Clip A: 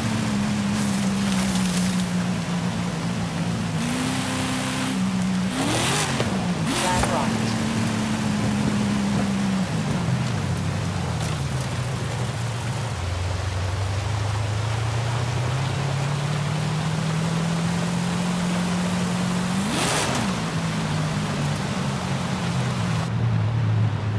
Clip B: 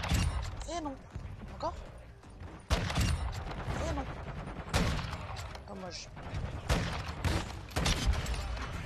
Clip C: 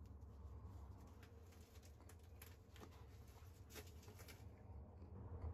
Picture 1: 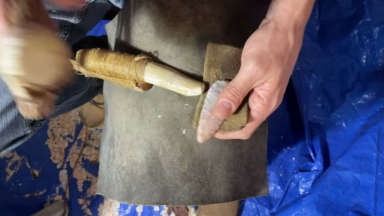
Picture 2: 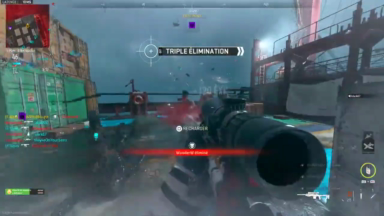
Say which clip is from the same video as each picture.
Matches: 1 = C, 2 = B